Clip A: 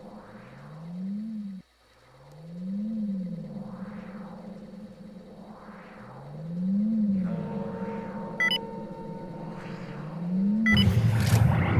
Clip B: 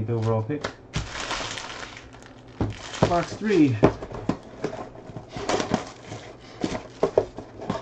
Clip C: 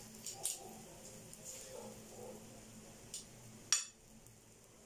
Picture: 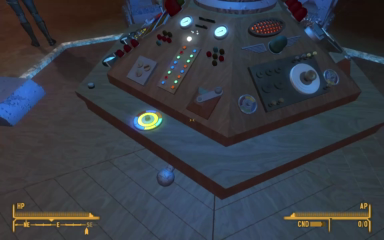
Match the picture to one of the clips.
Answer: A